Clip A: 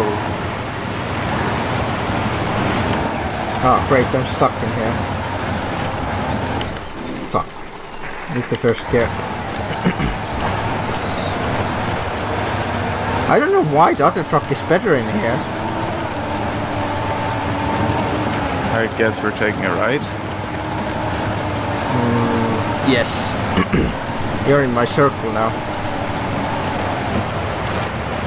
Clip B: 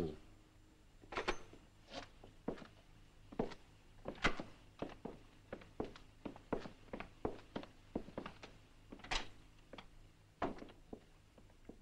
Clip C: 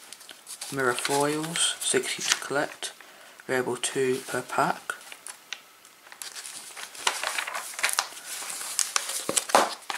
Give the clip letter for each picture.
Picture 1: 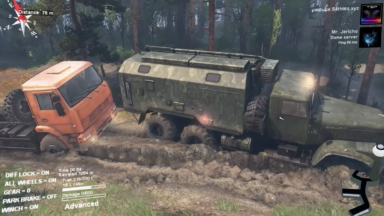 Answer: A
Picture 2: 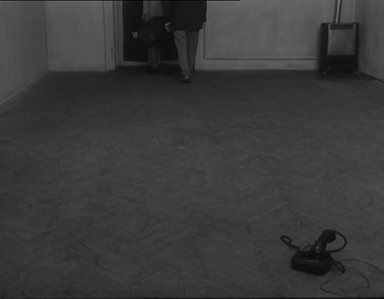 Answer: B